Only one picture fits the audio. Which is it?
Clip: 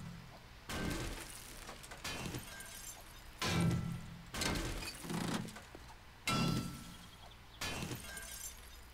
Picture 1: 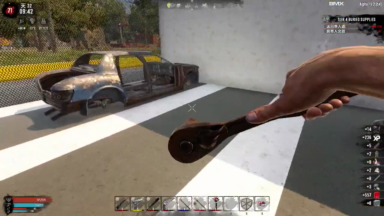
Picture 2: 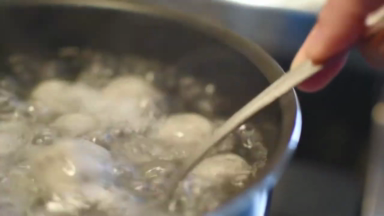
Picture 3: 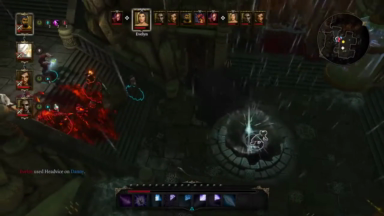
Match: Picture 1